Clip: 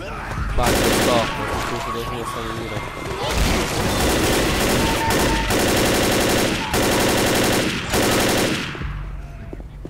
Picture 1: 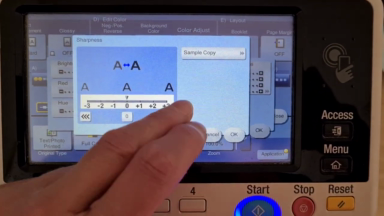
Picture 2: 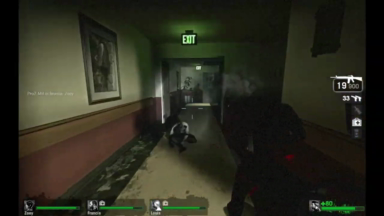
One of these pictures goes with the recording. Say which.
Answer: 2